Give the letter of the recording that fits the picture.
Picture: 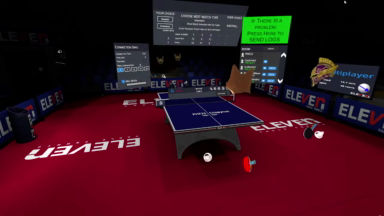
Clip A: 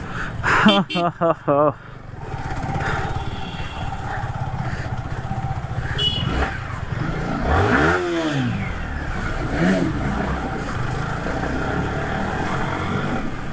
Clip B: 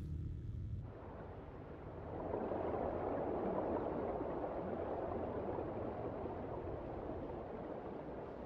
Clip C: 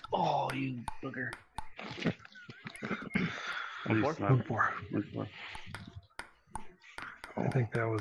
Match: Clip C